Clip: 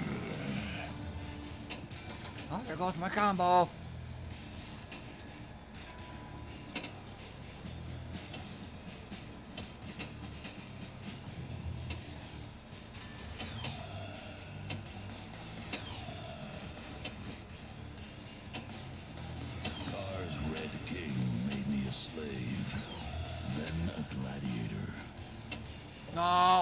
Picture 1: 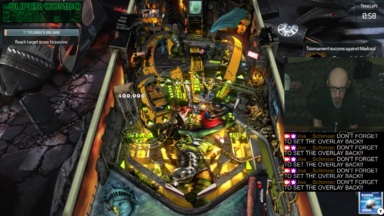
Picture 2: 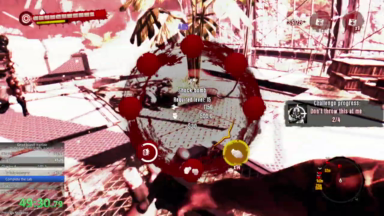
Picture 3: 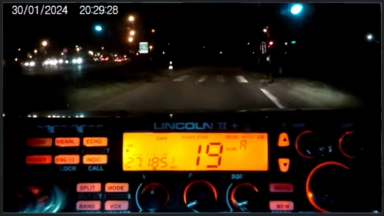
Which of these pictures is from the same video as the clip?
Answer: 1